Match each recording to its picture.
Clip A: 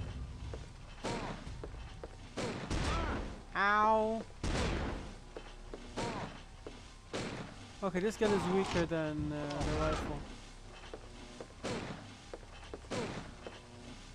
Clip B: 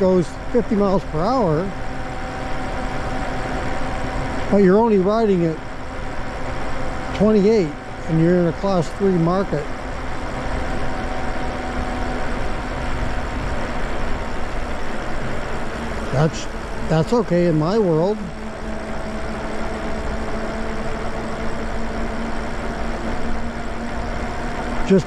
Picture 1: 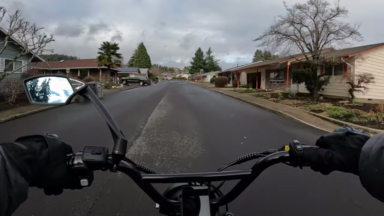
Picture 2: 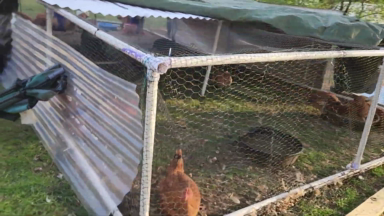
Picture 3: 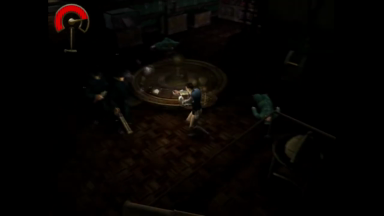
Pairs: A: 3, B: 1